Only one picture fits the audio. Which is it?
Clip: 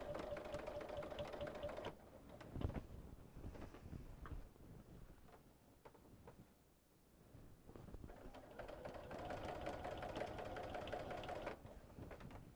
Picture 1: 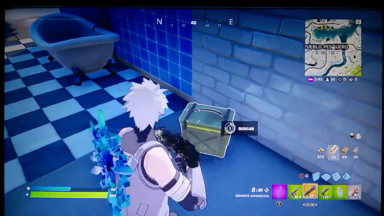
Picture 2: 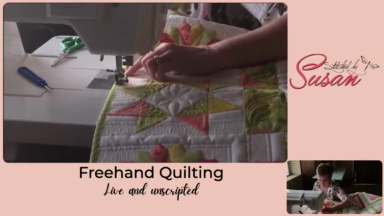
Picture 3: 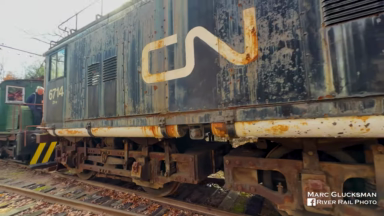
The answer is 2